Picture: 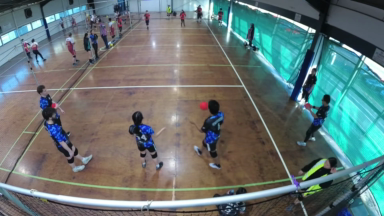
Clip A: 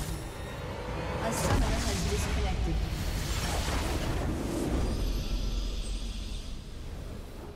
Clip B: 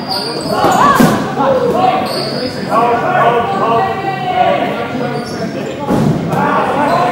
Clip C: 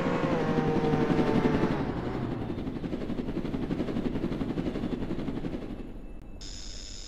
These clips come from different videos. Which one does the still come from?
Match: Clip B